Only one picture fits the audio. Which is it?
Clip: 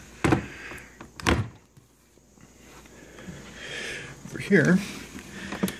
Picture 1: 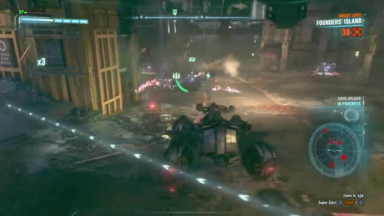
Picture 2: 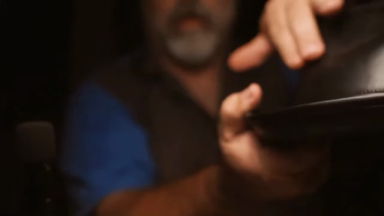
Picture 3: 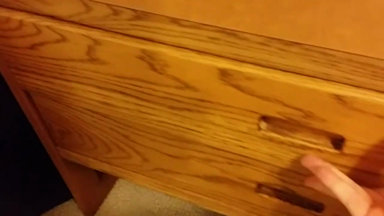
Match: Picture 3